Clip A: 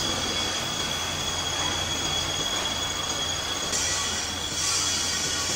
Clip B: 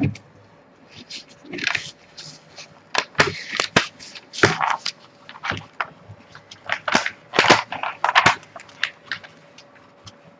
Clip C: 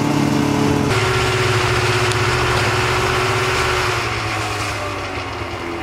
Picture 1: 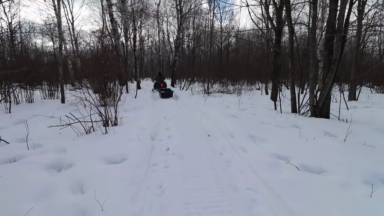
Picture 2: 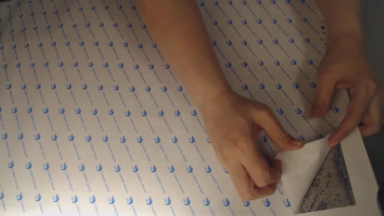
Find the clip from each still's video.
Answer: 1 C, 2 B